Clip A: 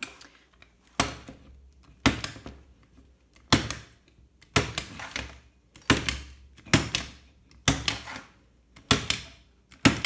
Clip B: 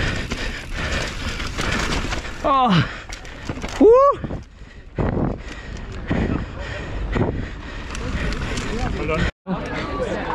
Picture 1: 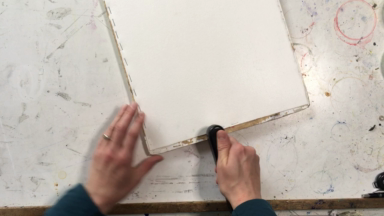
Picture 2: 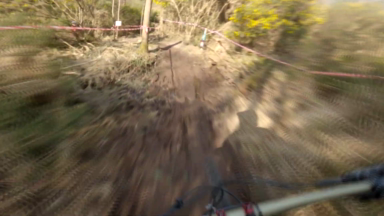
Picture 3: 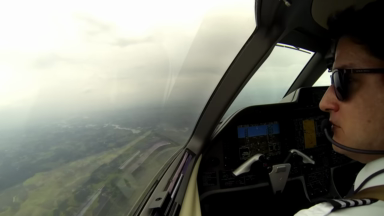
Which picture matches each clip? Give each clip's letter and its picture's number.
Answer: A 1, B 2